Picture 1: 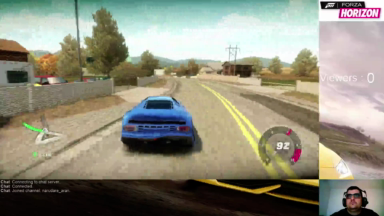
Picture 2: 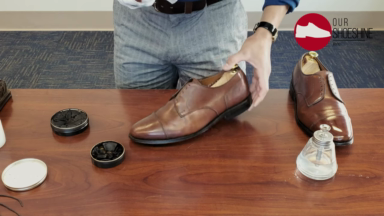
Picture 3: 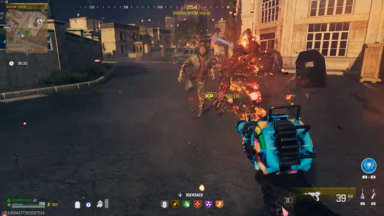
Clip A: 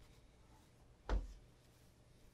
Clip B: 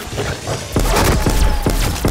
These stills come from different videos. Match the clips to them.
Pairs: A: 2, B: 3